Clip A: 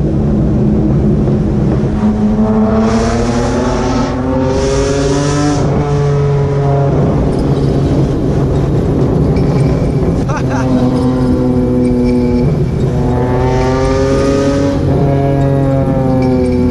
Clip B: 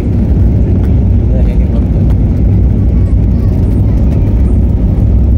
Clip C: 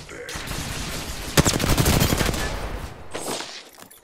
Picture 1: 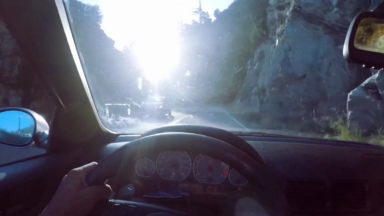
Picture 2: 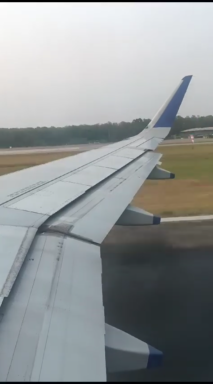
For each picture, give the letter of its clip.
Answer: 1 A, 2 B